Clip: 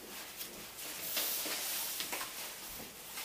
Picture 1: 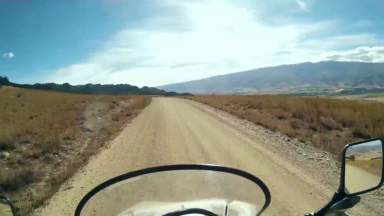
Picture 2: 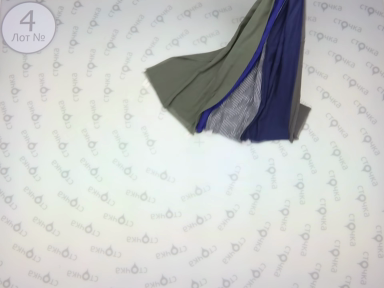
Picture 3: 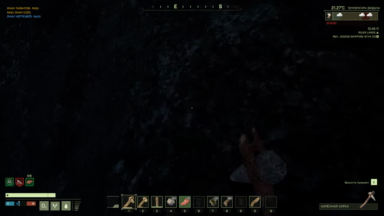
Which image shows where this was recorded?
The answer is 2